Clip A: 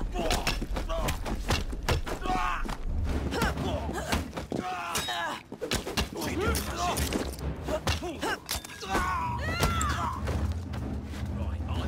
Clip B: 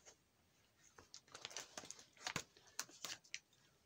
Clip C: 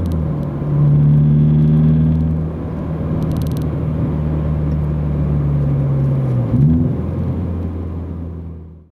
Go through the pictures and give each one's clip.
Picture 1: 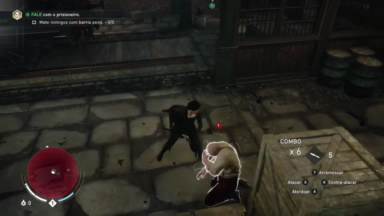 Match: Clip A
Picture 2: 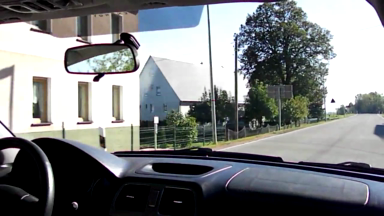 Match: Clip C